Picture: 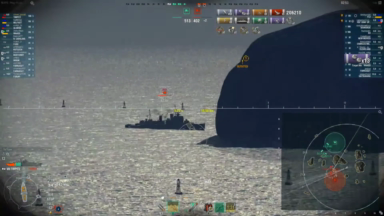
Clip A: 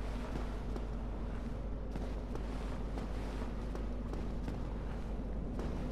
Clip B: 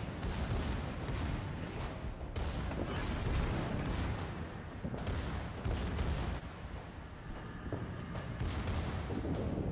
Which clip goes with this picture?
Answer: B